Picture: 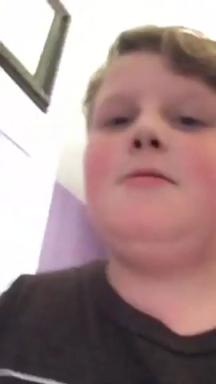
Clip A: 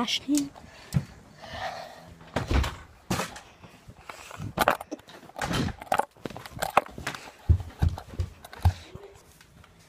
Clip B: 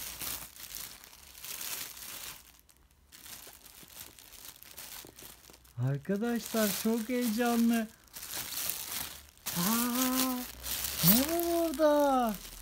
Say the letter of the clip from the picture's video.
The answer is A